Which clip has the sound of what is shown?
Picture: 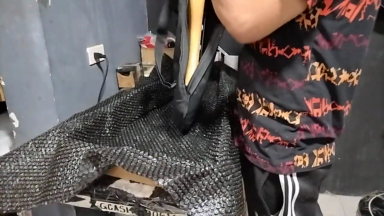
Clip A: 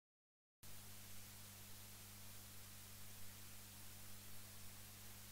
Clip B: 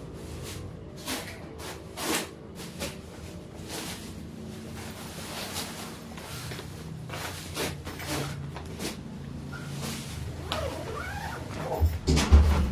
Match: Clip B